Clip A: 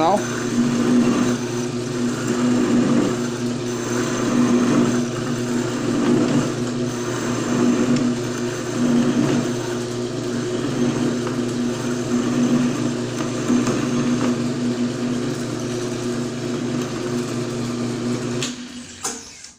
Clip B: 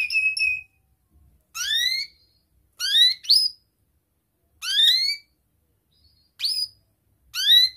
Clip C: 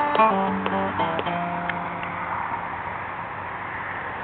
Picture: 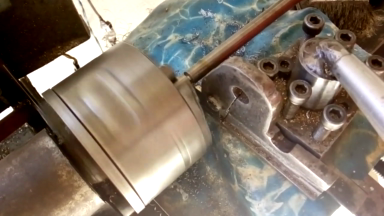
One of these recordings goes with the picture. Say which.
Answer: A